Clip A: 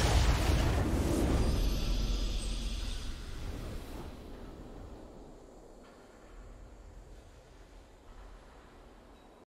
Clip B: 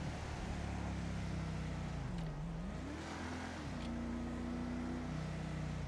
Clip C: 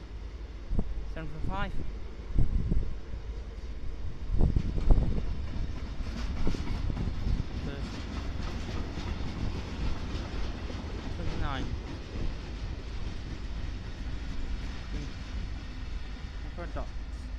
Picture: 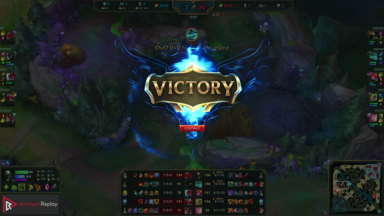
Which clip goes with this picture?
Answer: A